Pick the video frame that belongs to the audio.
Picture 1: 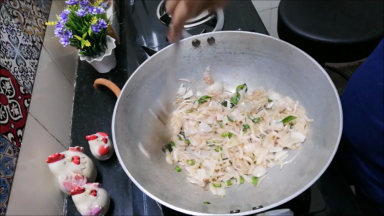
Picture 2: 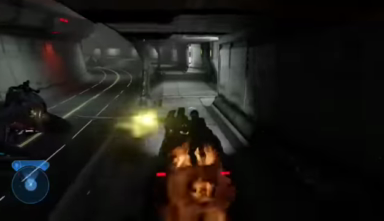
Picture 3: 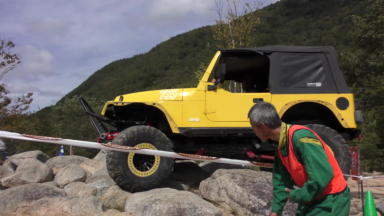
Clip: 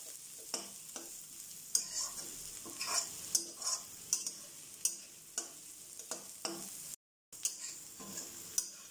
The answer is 1